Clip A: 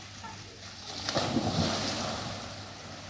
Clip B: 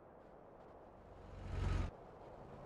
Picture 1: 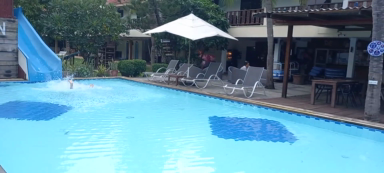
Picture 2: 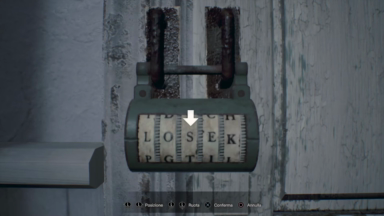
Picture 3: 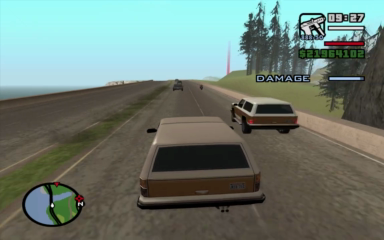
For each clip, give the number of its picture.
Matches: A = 1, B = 3